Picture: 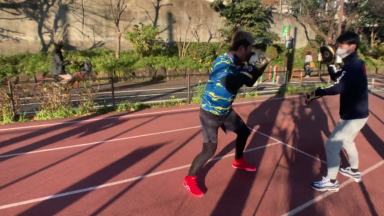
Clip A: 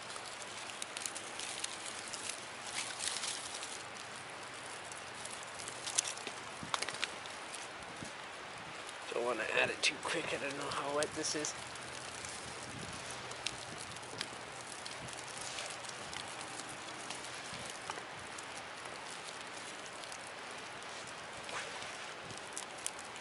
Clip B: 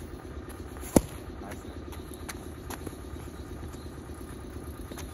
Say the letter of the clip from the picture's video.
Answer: B